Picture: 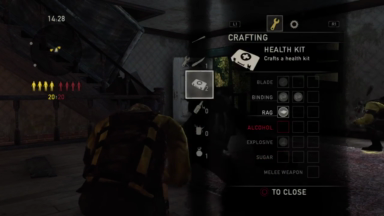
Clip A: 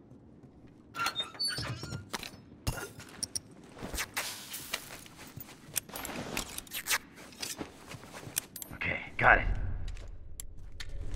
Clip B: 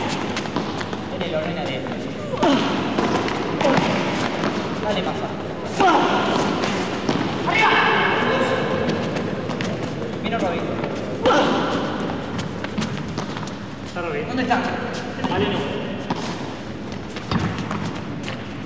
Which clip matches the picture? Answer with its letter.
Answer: A